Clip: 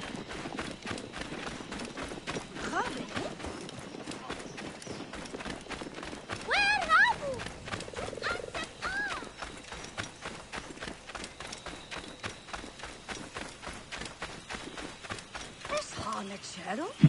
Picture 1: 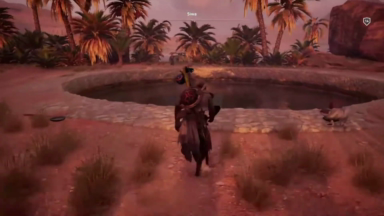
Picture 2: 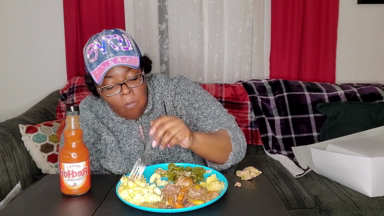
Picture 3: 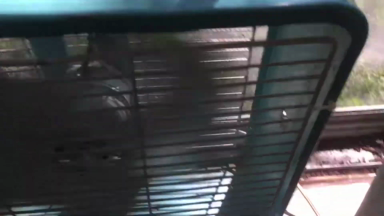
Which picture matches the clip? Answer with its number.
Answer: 1